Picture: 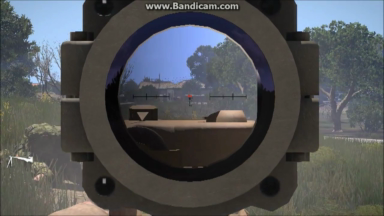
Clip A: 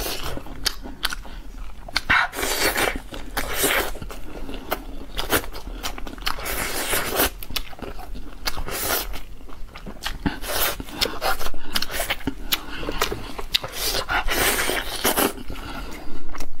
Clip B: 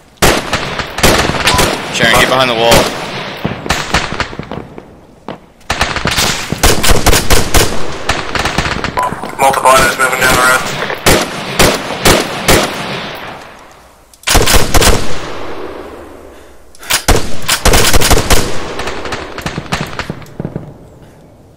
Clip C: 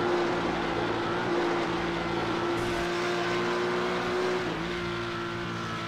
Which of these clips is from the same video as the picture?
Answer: B